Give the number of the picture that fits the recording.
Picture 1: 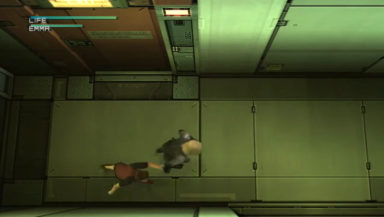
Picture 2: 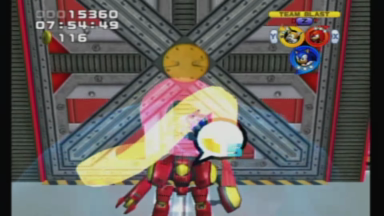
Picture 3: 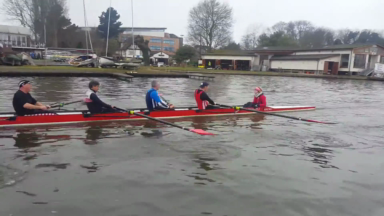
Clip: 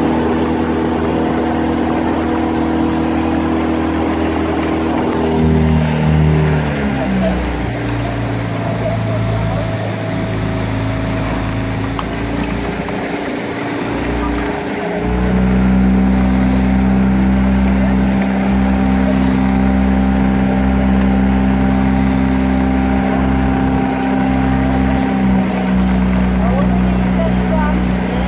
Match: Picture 3